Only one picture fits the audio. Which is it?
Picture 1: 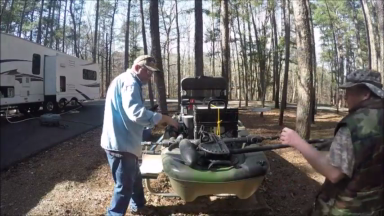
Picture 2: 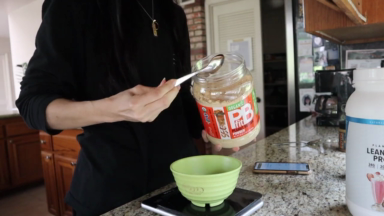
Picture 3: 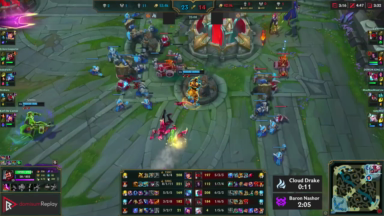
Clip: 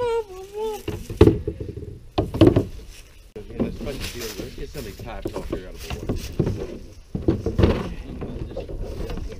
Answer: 1